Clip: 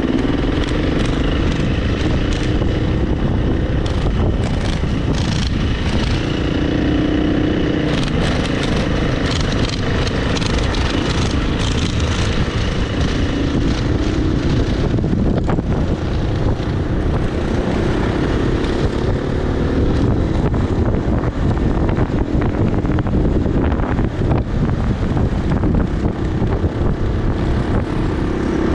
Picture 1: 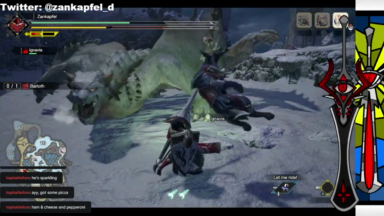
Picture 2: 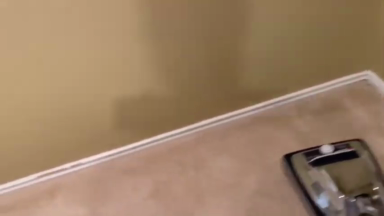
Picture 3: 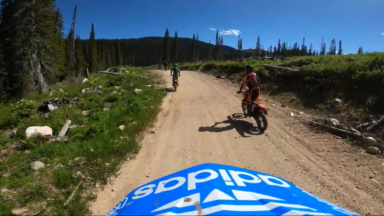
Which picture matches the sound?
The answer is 3